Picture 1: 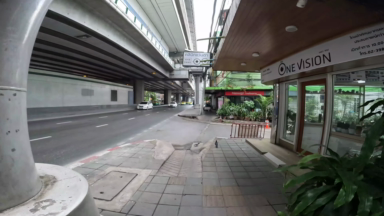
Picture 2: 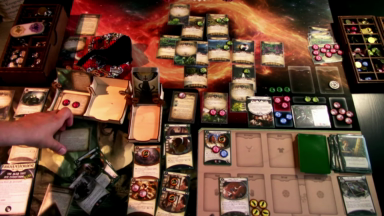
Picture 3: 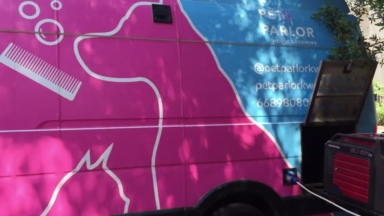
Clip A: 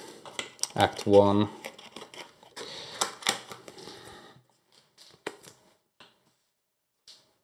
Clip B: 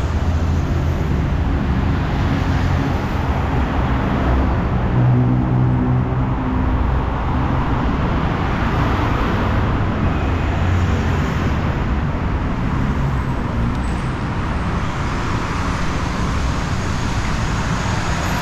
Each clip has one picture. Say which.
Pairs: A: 2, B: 1